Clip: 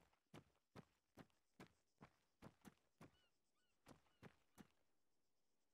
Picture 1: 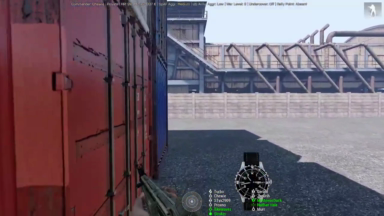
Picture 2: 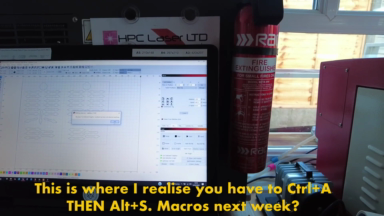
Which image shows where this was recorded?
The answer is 1